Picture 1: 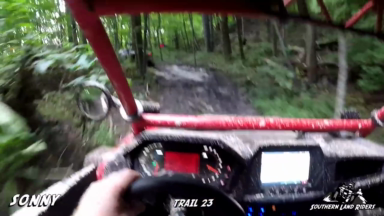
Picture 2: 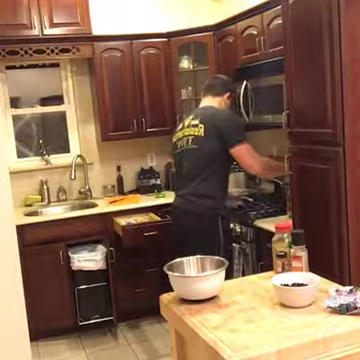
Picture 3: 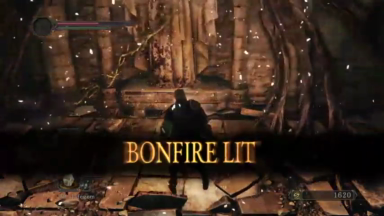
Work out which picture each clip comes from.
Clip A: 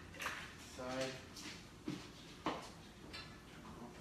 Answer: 2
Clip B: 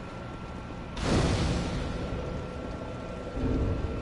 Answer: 3